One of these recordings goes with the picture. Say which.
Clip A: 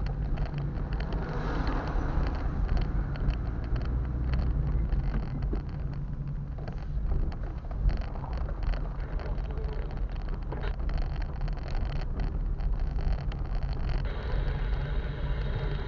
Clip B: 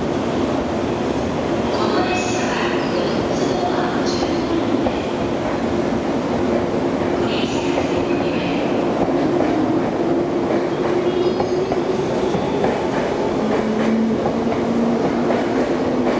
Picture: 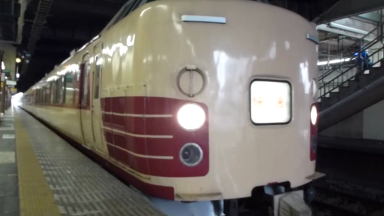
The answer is B